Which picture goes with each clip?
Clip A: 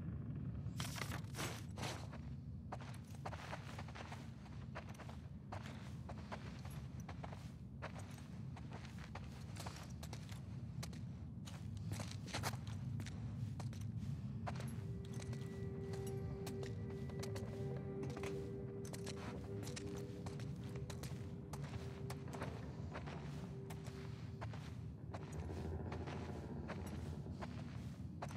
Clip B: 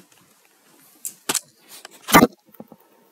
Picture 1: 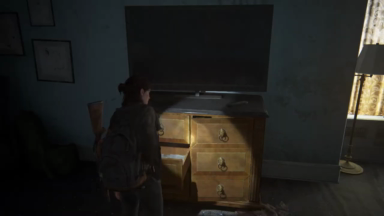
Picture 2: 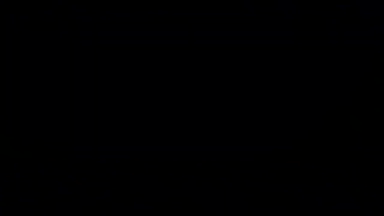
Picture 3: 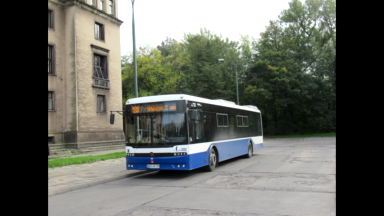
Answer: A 1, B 2